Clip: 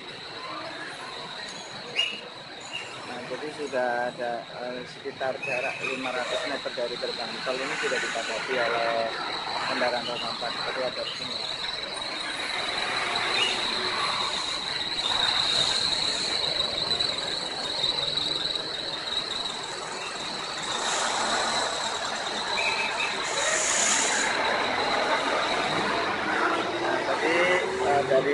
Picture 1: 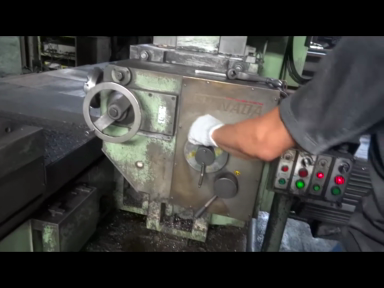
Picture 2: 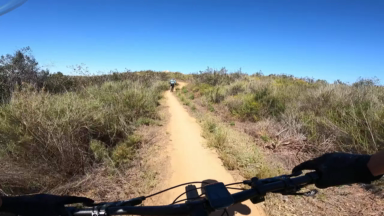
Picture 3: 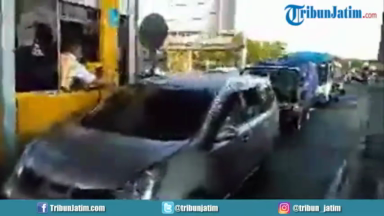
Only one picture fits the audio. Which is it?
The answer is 3